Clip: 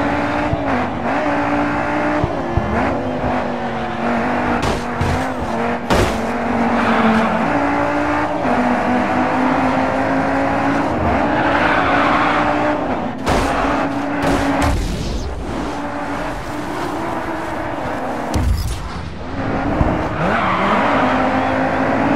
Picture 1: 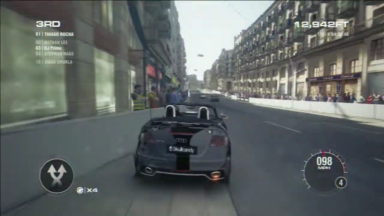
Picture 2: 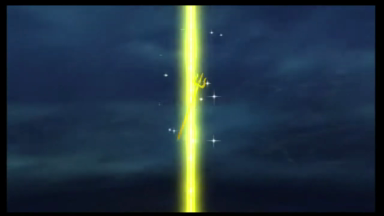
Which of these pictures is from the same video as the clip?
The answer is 1